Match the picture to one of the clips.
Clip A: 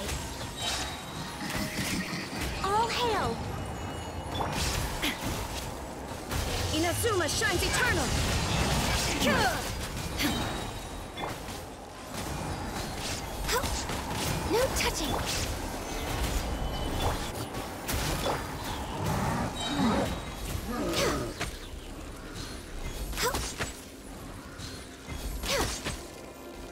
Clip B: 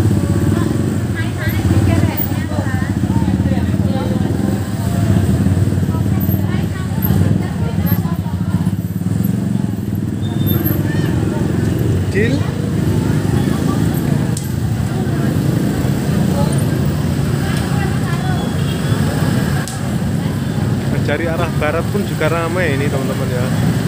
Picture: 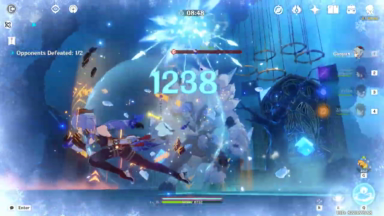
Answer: A